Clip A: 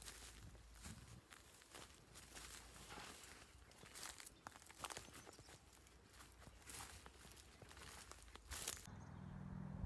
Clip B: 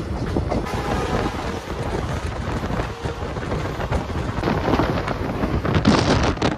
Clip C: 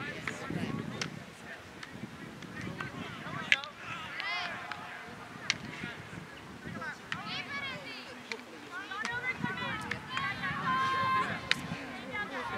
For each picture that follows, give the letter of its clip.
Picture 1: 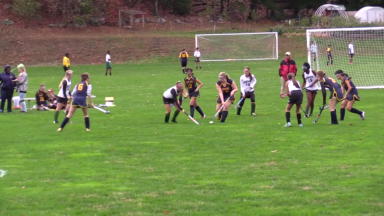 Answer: C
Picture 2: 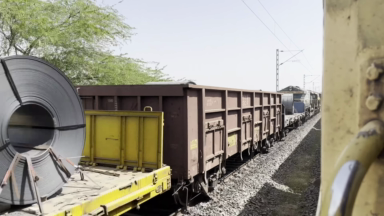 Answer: B